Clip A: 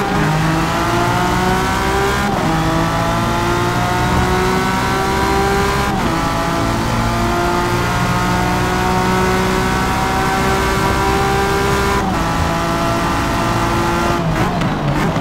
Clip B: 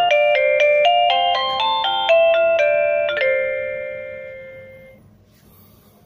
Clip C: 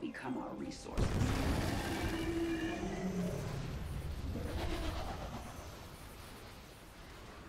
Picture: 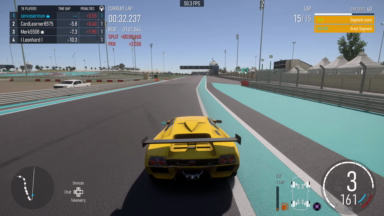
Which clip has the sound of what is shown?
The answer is A